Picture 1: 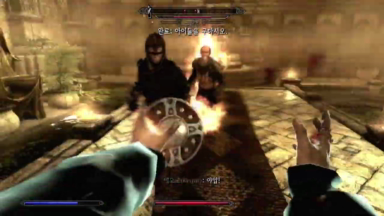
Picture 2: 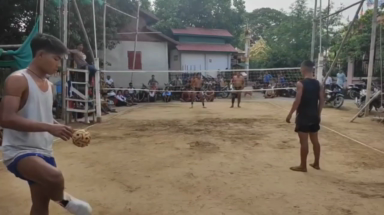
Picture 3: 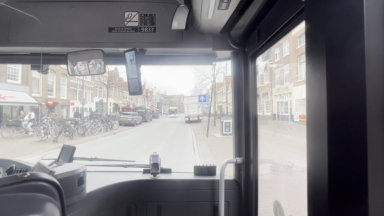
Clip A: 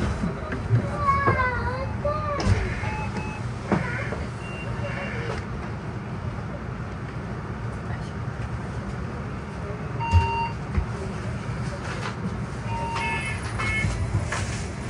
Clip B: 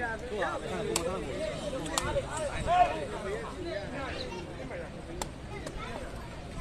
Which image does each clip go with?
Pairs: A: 3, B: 2